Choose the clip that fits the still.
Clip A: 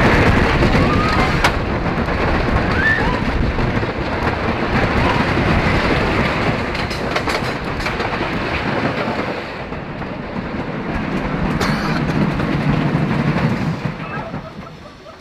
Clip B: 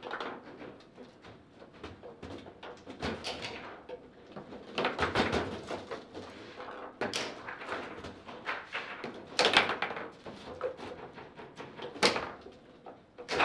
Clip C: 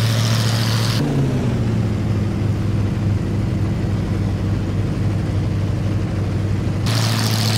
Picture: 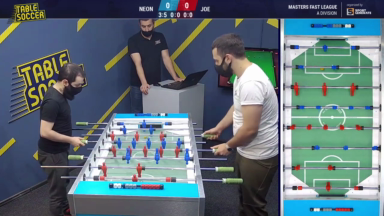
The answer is B